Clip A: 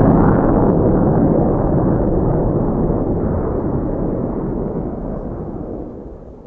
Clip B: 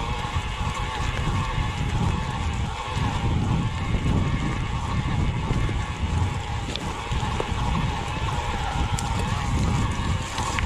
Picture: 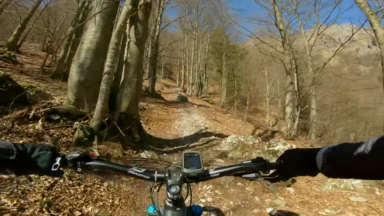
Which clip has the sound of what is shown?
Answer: B